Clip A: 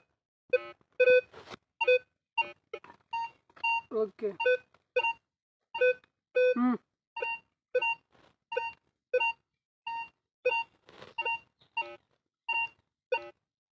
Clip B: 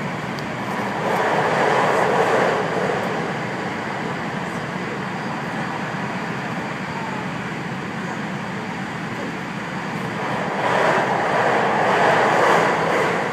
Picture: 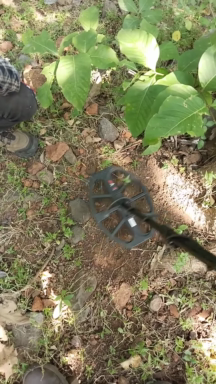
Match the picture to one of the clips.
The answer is A